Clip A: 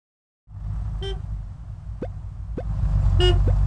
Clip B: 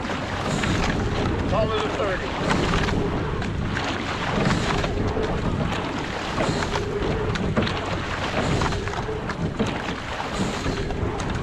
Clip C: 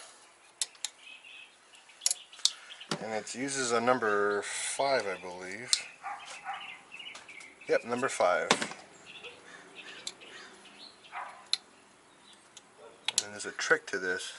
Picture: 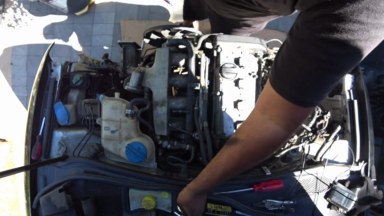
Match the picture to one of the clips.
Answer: C